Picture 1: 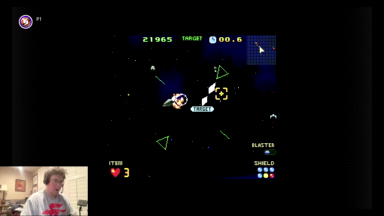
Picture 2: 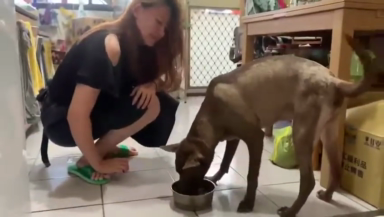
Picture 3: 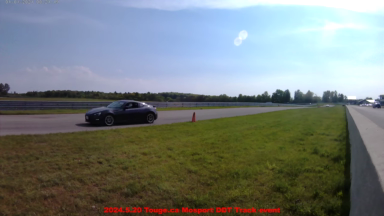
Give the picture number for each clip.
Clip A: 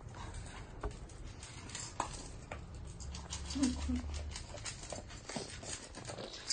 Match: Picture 2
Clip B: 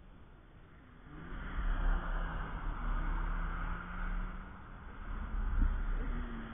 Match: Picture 3